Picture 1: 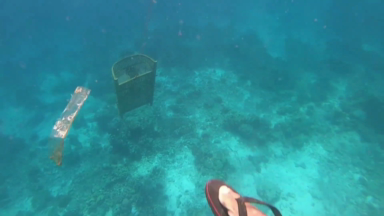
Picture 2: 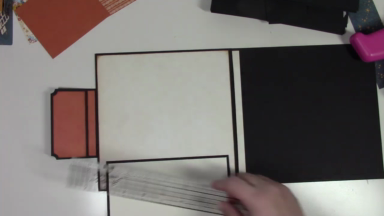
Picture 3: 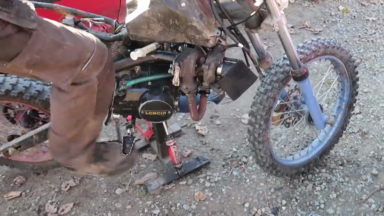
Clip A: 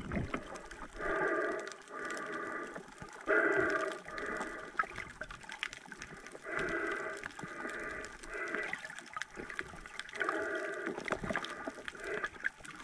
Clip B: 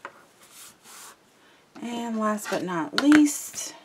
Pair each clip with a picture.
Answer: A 1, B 2